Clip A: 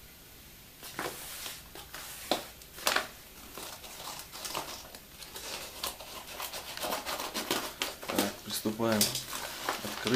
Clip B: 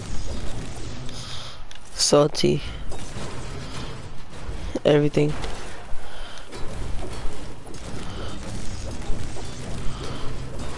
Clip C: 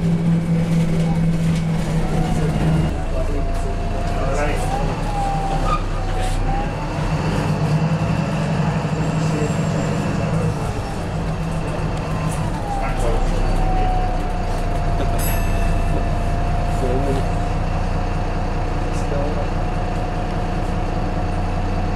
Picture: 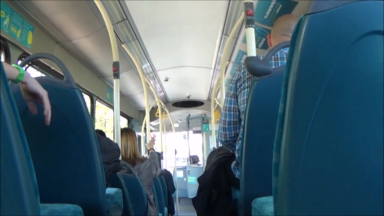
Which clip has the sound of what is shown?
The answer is C